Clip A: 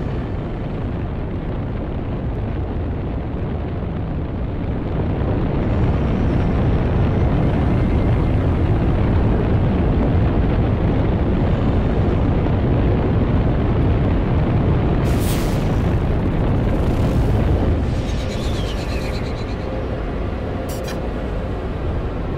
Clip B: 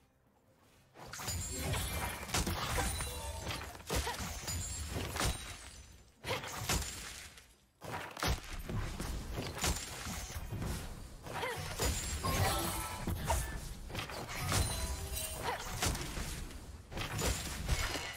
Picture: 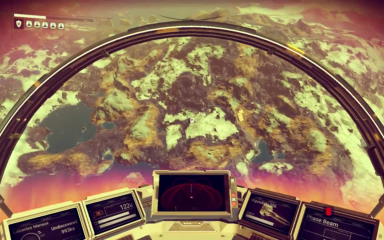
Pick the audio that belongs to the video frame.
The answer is A